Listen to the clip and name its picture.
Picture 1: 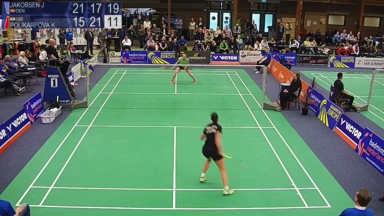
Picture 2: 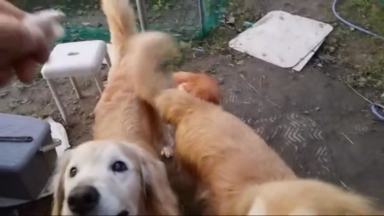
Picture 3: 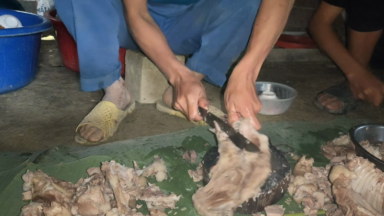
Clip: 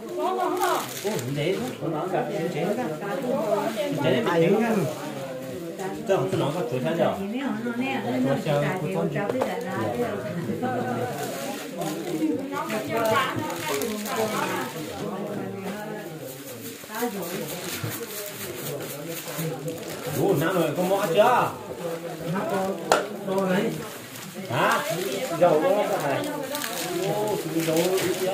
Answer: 3